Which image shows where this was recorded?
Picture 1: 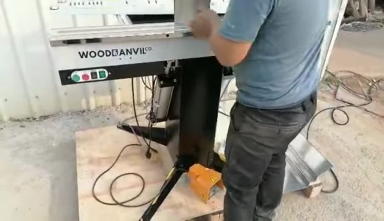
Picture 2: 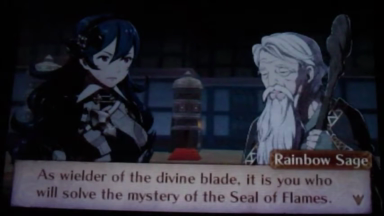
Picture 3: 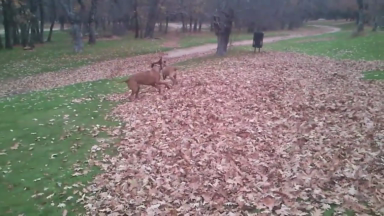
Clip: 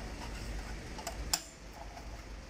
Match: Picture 1